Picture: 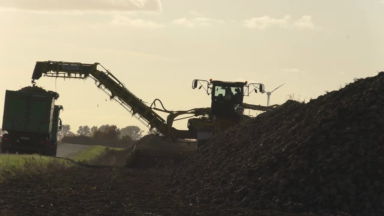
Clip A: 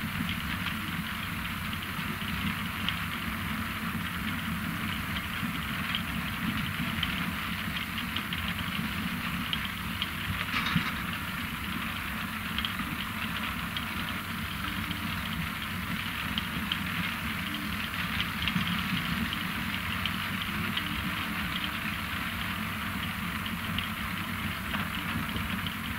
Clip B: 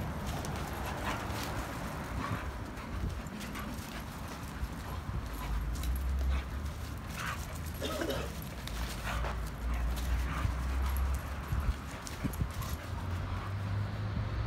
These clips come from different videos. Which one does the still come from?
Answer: A